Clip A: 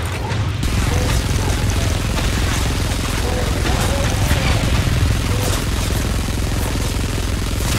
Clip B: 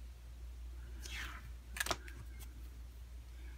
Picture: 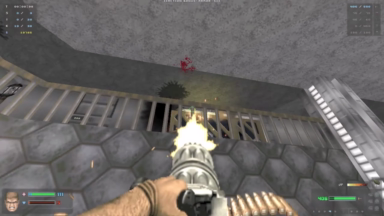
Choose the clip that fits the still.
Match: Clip A